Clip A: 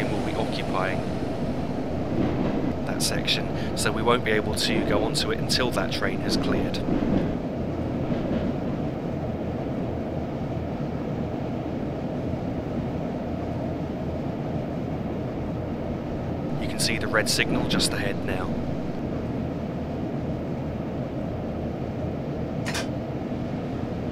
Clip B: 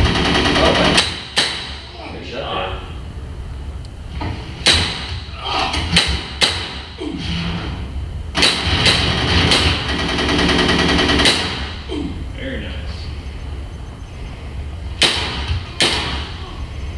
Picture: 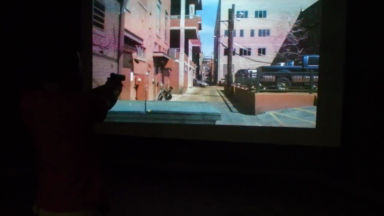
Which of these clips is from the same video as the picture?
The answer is B